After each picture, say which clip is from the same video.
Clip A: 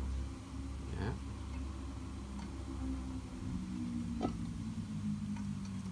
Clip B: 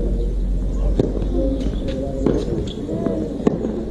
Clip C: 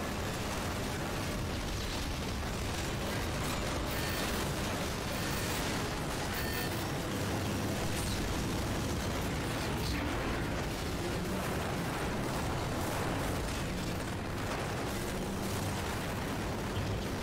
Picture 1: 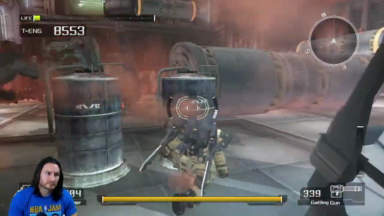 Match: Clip C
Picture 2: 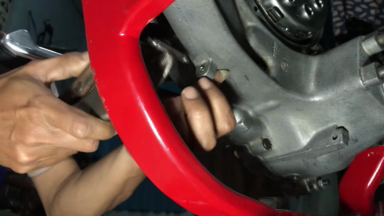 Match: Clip A